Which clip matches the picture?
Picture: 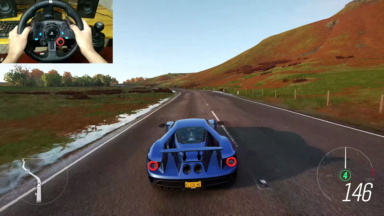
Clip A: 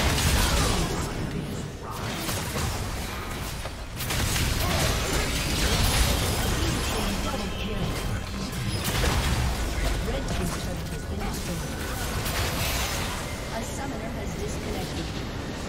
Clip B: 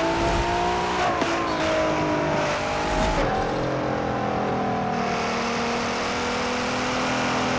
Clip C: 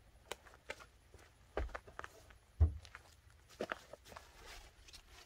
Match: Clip B